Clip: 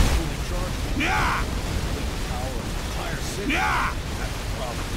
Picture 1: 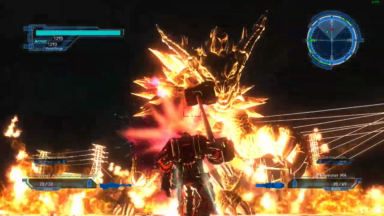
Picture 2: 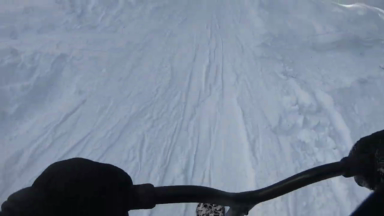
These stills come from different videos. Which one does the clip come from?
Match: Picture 1